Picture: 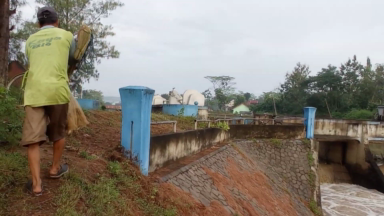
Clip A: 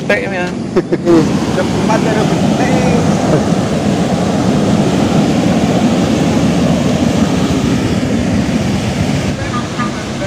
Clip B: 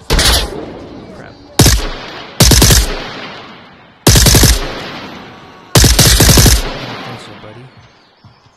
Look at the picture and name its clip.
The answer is A